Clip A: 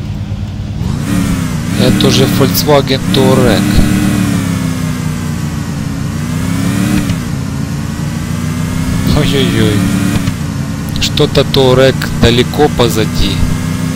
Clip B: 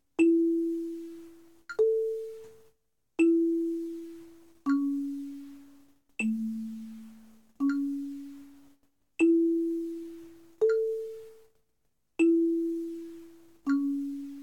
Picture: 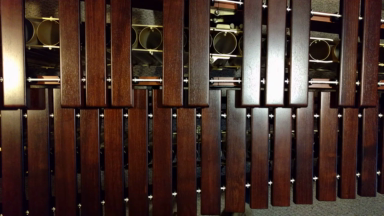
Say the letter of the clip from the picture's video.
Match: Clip B